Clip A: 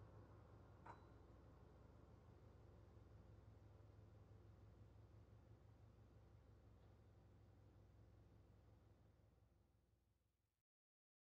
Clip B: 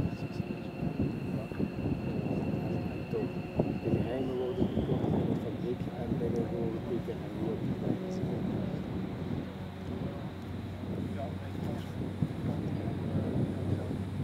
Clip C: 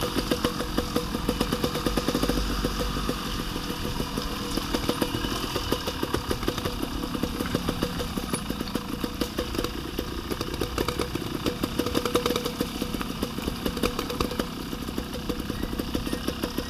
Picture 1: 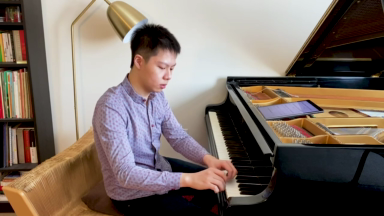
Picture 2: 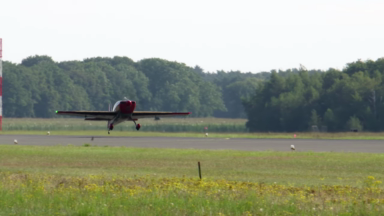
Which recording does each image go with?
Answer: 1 A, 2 B